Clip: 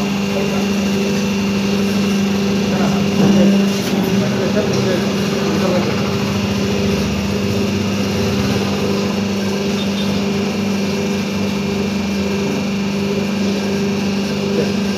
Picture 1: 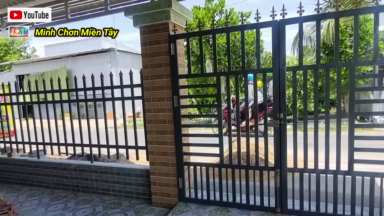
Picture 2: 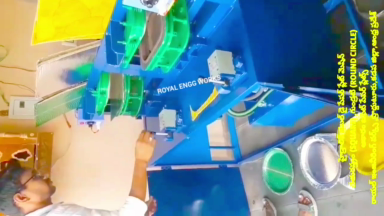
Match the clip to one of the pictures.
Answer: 2